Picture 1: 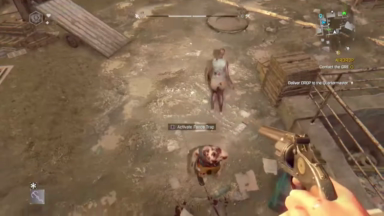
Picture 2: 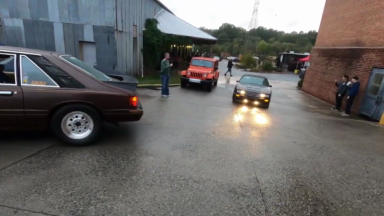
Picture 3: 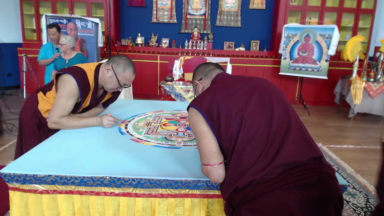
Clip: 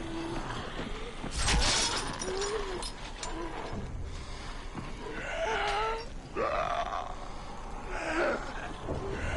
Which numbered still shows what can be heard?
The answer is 1